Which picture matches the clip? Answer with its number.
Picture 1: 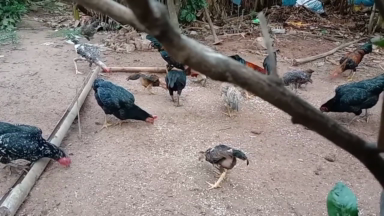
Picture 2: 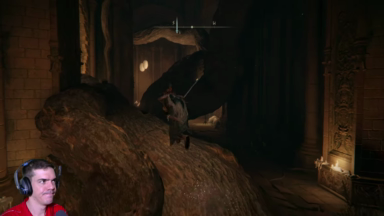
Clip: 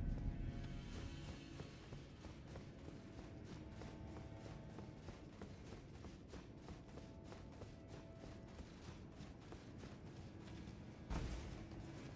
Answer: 2